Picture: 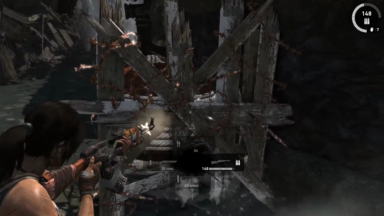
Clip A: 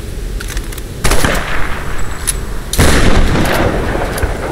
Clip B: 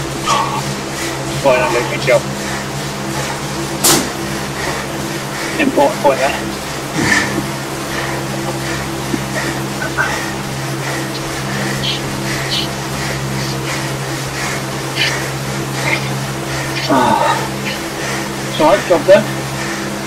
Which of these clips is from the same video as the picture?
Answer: A